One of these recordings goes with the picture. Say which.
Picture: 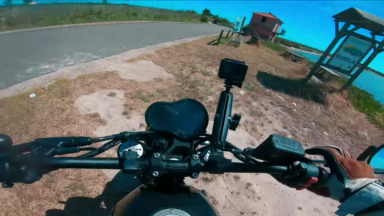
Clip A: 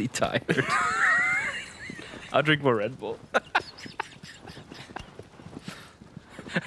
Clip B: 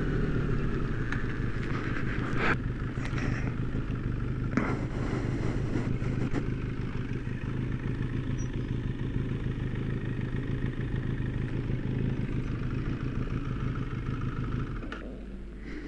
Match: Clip B